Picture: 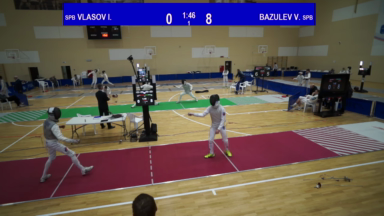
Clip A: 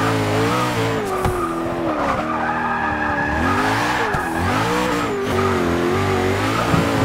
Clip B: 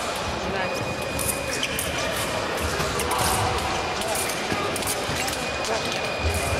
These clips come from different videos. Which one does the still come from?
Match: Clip B